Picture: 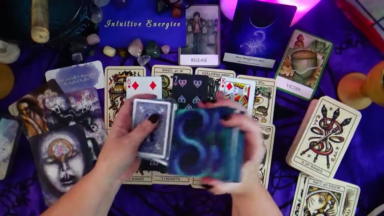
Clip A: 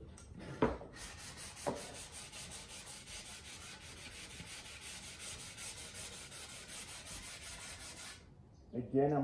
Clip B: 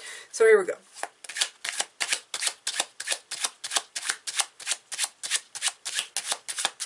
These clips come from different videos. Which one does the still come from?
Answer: B